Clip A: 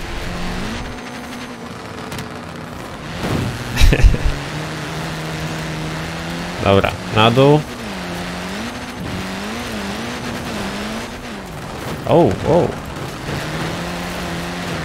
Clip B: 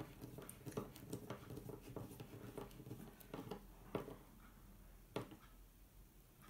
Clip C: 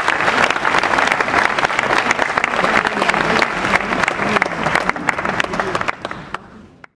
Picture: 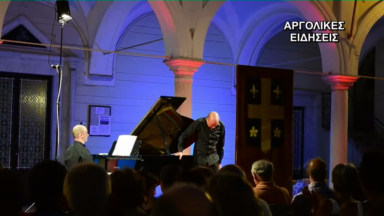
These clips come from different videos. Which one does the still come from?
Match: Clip C